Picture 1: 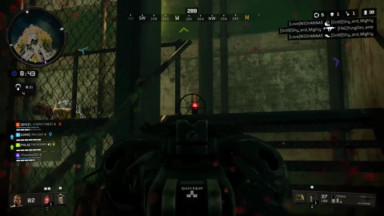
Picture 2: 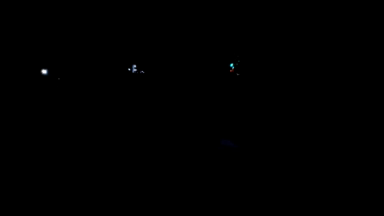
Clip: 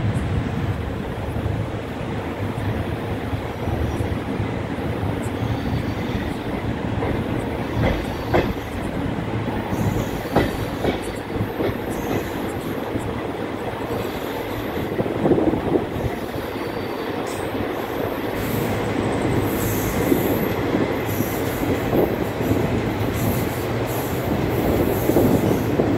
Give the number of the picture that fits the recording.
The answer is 2